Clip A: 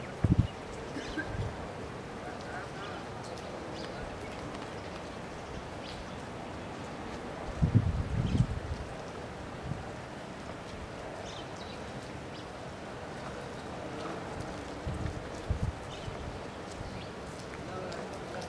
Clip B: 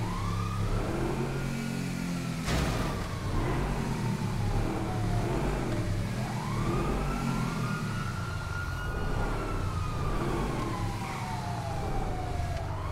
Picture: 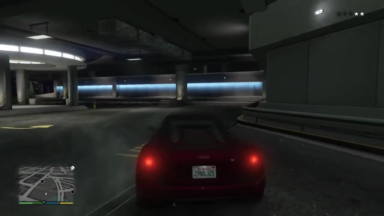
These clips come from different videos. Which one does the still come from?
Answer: B